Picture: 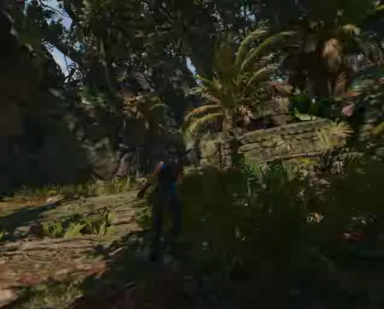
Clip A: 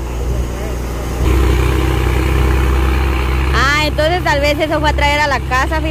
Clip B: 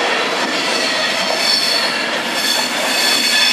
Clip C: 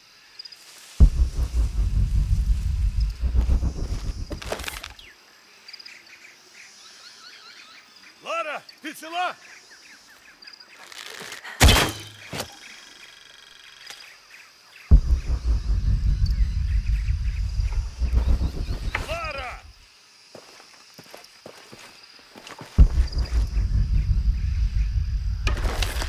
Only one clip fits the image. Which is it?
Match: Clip C